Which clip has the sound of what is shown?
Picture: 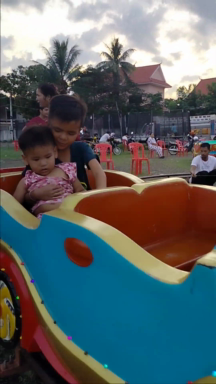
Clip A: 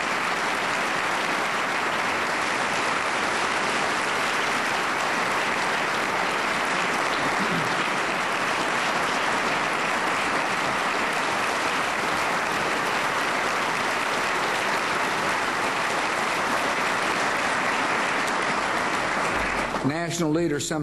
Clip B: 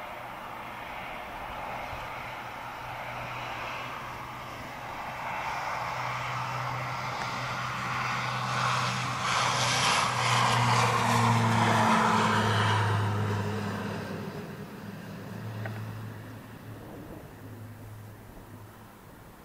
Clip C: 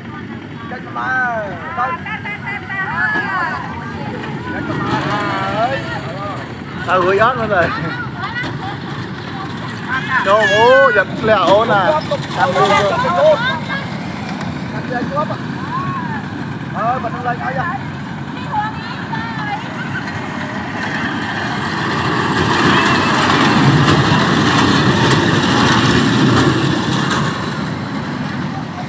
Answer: C